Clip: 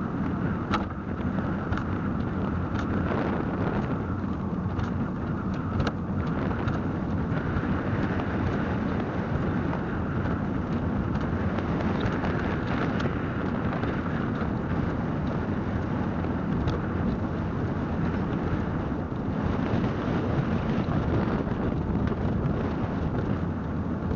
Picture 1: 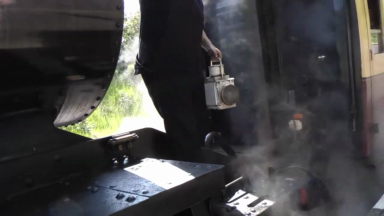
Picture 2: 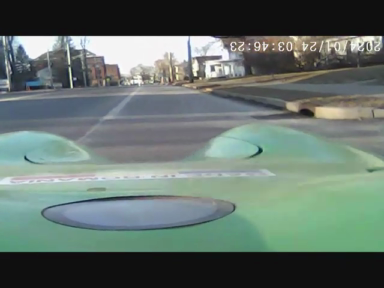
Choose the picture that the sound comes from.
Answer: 2